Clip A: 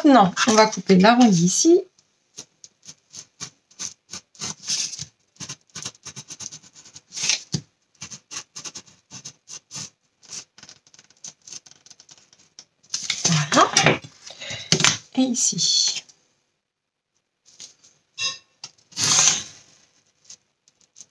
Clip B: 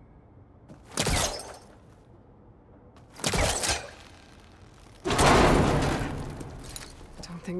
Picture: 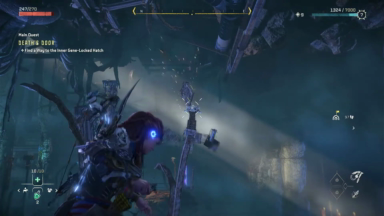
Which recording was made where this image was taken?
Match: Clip B